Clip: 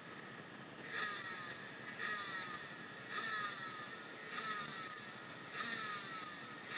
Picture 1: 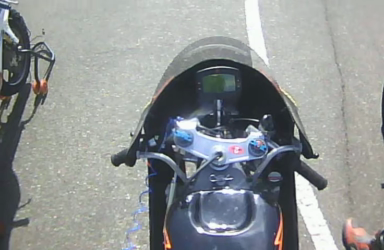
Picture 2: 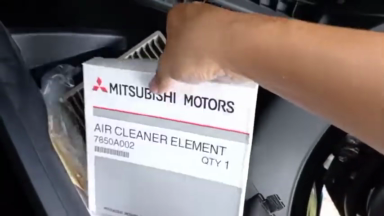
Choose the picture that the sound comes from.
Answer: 1